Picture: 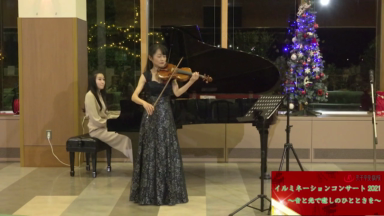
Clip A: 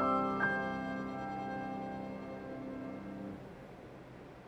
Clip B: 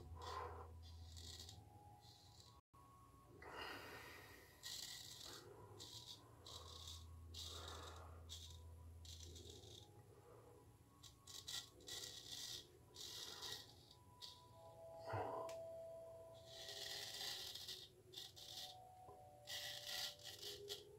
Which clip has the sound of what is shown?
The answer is A